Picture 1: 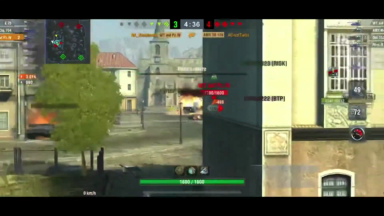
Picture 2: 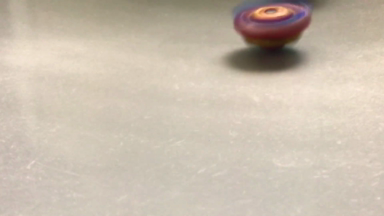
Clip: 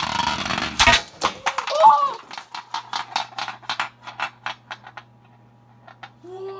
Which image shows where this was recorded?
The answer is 2